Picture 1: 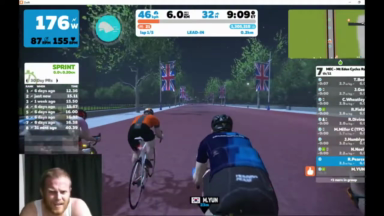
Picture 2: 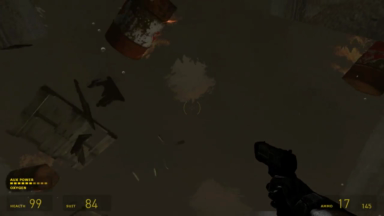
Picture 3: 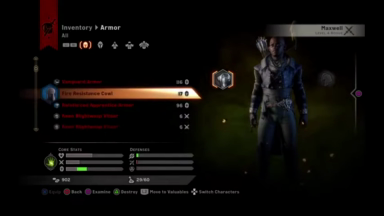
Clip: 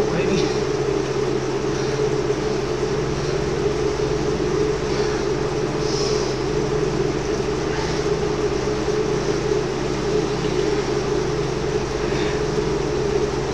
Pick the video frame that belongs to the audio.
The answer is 1